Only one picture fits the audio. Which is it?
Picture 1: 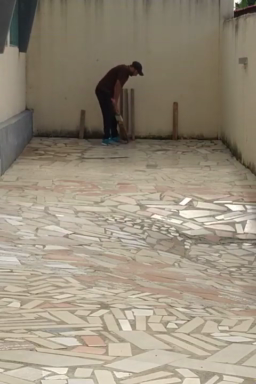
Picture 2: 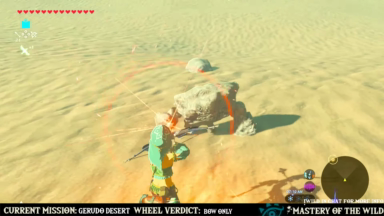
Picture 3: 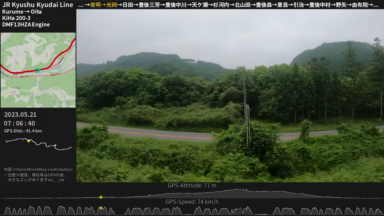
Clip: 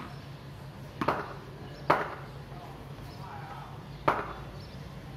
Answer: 1